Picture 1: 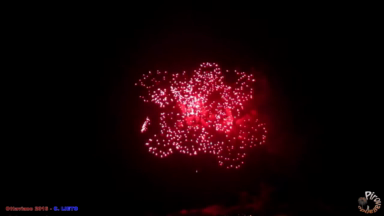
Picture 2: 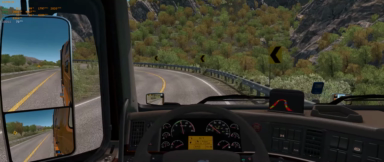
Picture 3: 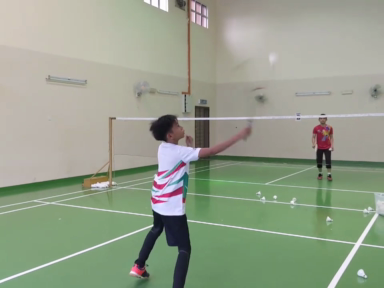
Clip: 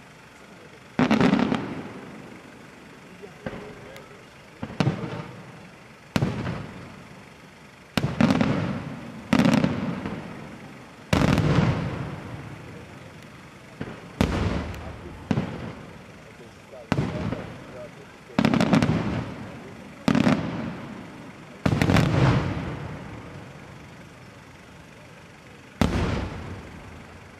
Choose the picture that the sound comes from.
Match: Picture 1